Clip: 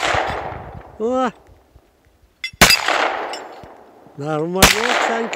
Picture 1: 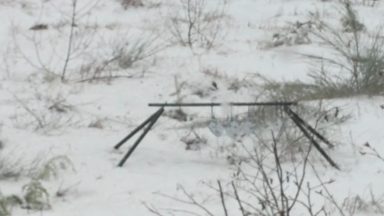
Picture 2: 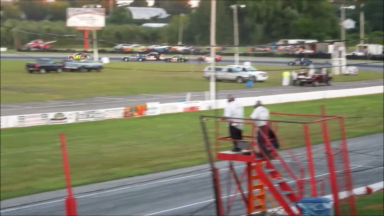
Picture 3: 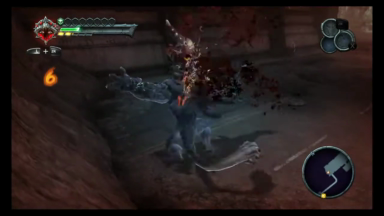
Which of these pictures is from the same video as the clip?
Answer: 1